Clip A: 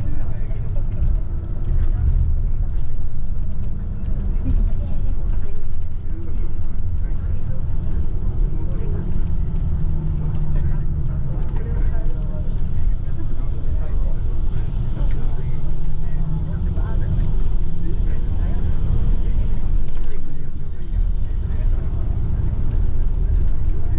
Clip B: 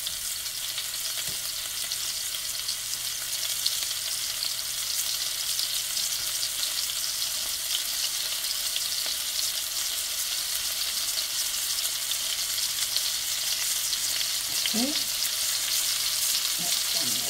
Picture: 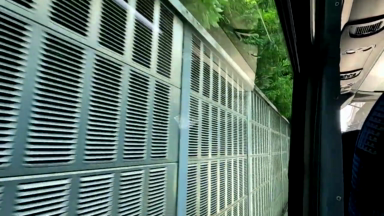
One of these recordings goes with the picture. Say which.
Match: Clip A